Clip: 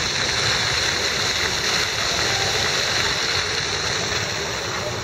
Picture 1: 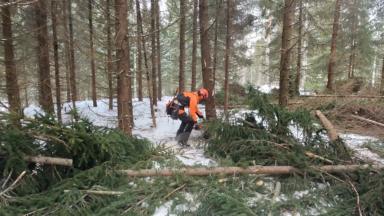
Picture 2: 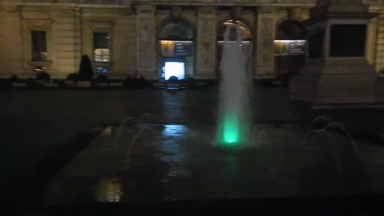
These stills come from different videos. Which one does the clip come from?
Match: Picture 2